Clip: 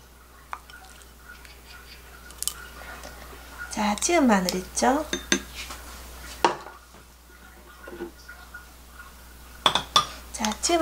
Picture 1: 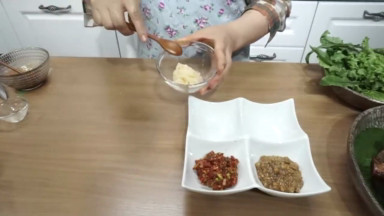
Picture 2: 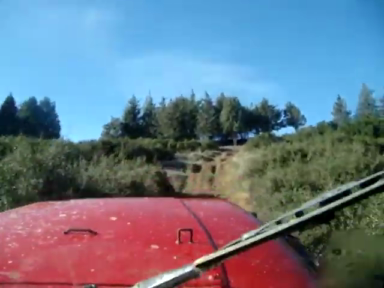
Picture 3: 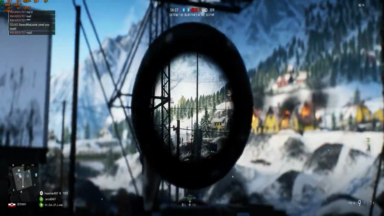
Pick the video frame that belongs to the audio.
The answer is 1